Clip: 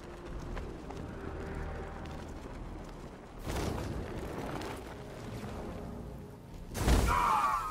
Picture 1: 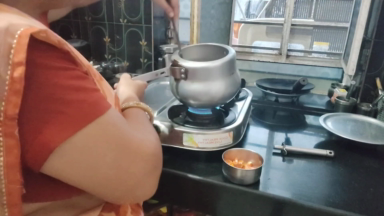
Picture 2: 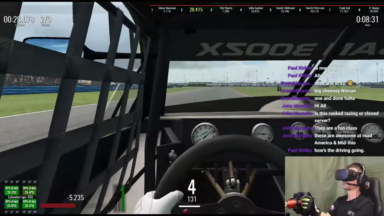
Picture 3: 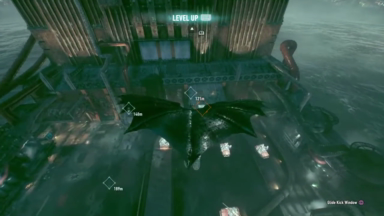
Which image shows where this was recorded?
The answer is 3